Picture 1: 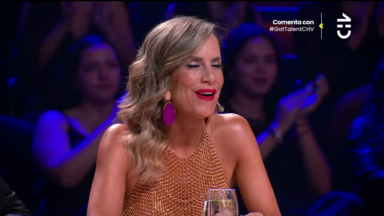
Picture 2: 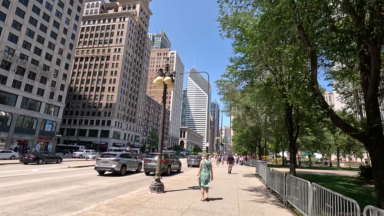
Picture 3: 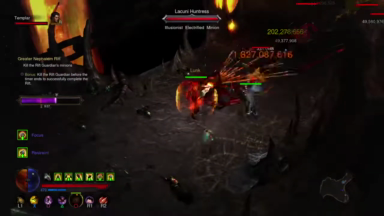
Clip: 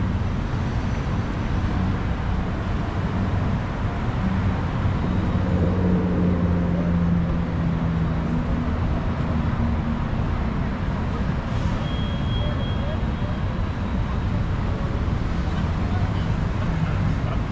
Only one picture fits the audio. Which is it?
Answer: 2